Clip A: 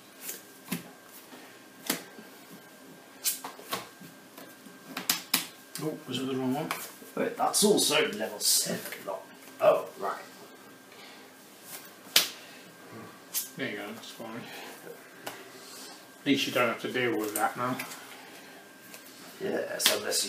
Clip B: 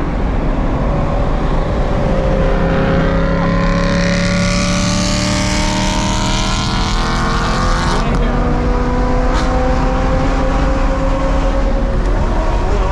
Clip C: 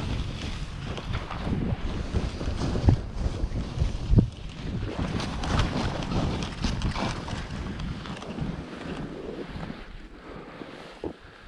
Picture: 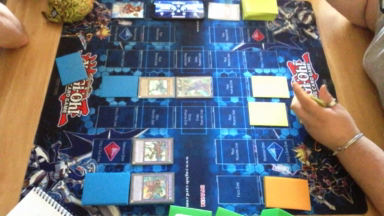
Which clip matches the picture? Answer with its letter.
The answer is A